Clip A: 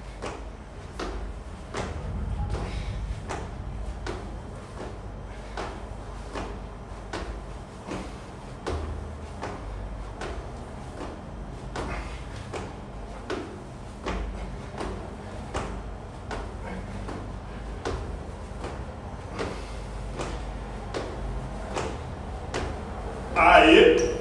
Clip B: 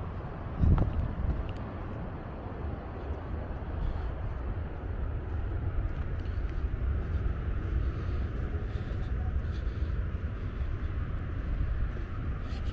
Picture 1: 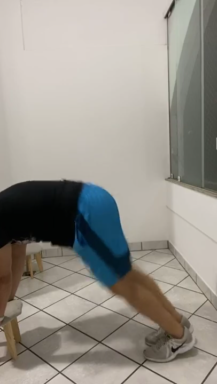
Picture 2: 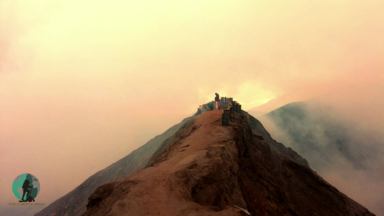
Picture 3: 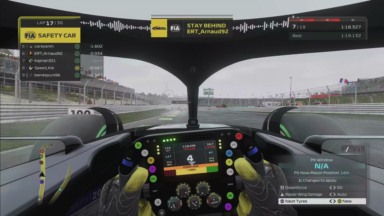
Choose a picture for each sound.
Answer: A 1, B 2